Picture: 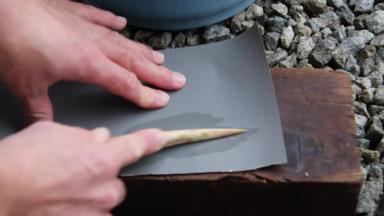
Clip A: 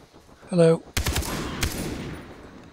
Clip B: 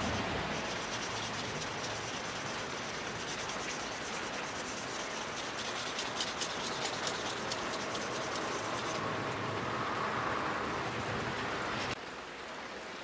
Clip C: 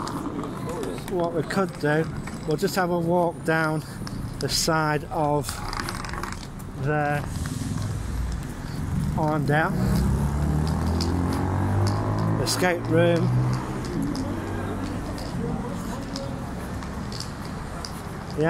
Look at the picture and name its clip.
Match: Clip B